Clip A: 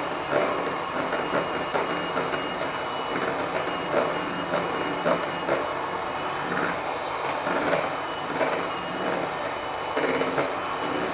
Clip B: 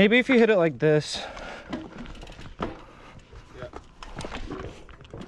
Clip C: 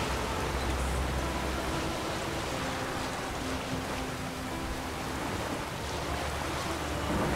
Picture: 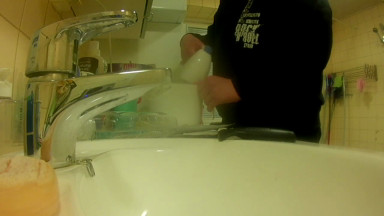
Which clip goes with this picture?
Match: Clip A